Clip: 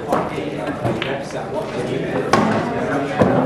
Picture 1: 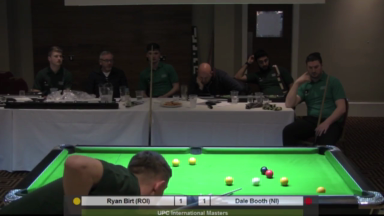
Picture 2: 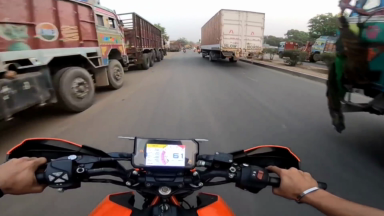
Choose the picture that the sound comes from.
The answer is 1